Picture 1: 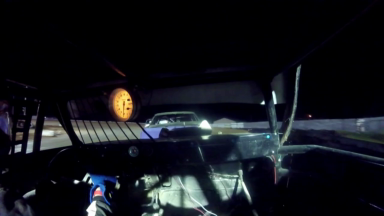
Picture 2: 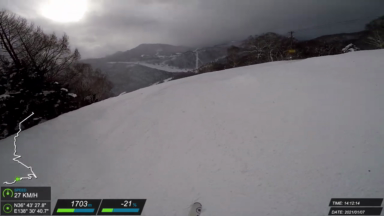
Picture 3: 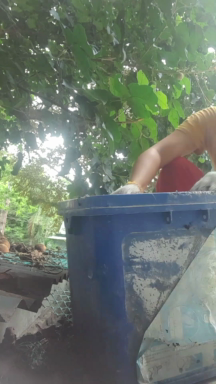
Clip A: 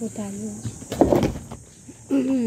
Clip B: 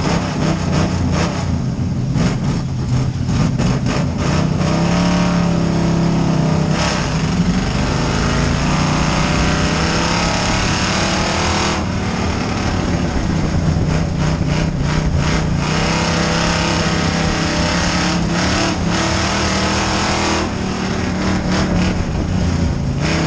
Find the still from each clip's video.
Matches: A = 3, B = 1